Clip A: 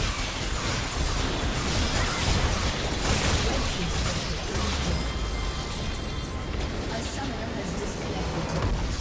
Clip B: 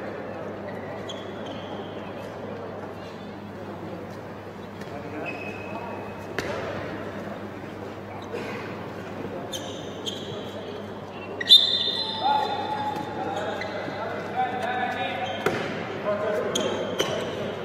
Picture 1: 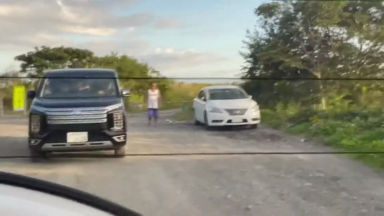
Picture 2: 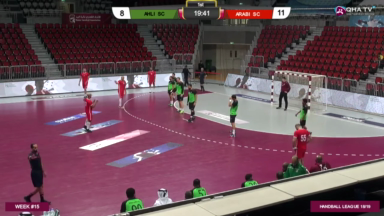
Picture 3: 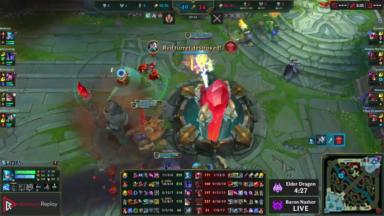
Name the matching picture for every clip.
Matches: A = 3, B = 2